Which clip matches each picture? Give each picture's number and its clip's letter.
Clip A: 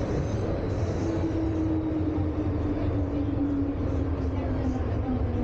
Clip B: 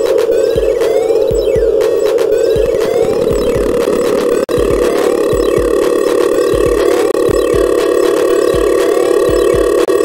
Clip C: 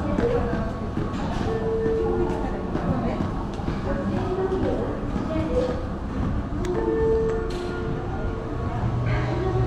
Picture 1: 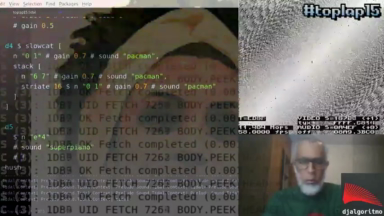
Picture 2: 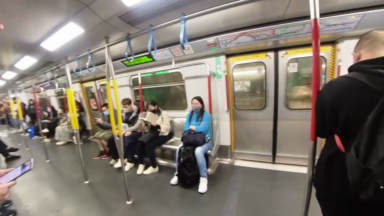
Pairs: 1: B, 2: A